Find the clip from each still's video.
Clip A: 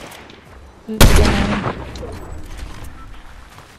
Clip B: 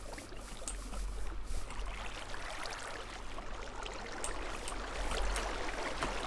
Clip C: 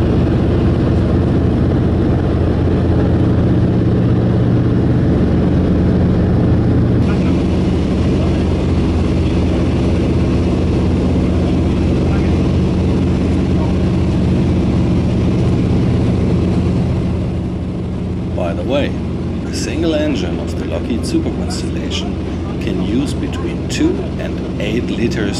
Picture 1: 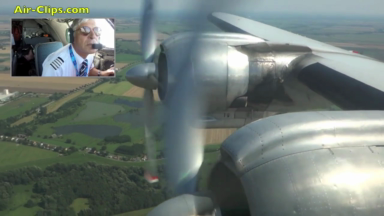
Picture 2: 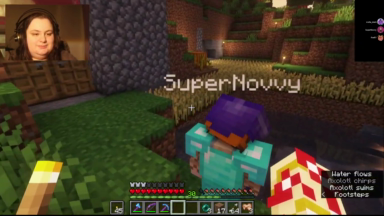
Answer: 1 C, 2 B